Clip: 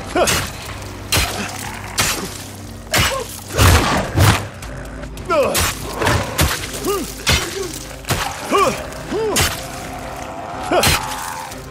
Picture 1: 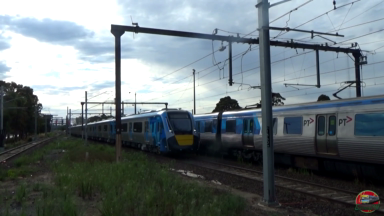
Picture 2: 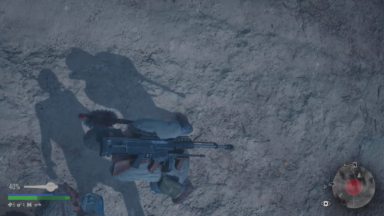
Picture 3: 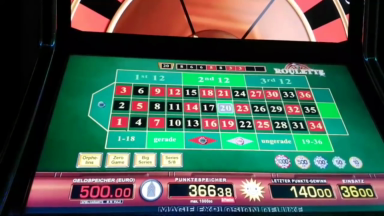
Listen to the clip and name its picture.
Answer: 2